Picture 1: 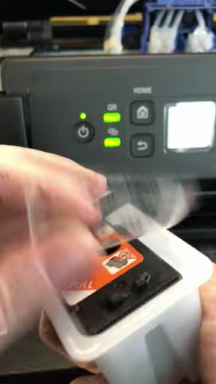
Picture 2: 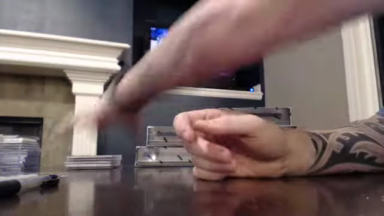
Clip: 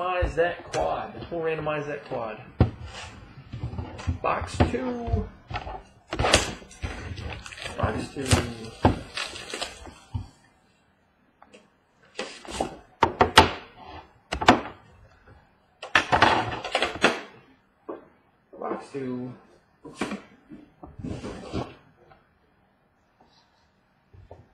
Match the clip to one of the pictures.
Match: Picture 2